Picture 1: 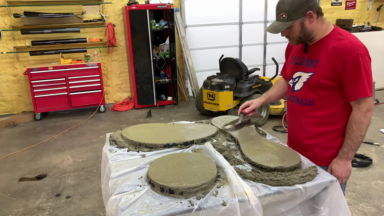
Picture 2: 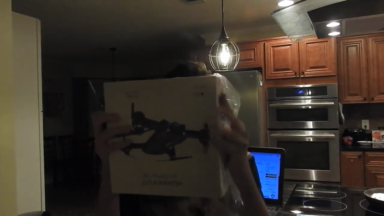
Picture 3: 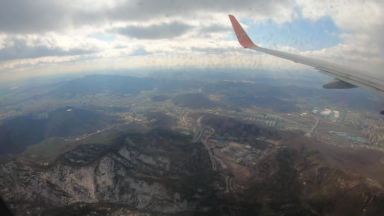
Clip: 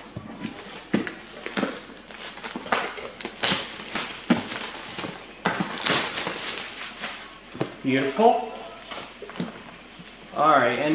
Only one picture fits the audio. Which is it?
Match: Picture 2